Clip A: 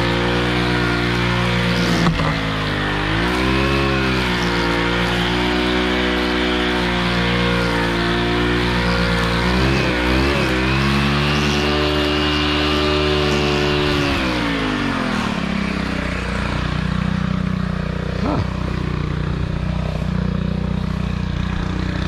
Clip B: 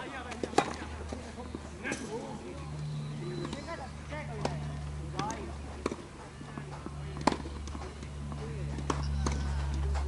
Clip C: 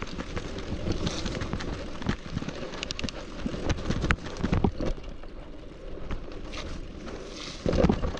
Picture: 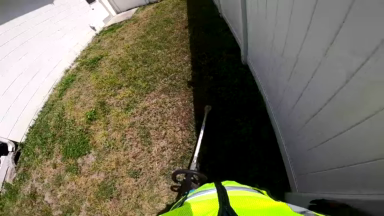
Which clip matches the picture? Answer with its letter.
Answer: A